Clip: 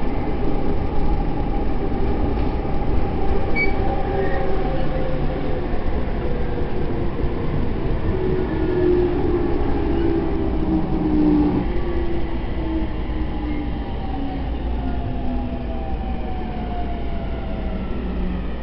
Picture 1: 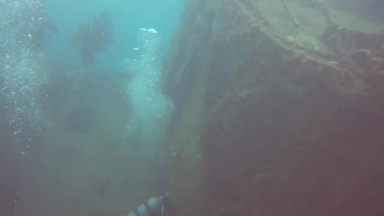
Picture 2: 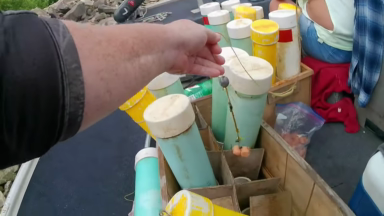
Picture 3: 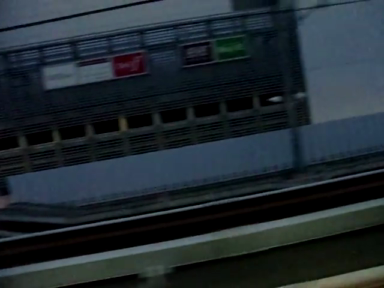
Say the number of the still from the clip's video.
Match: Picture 3